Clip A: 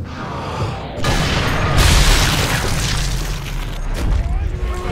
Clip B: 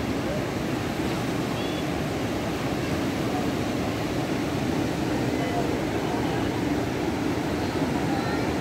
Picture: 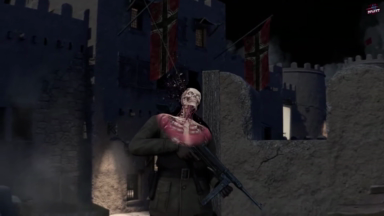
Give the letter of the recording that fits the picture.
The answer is A